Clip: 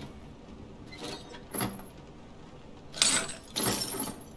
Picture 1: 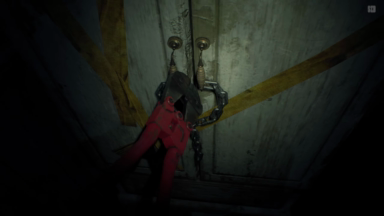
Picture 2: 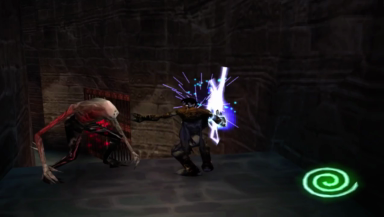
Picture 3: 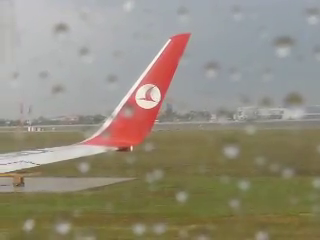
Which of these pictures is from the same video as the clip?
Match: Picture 1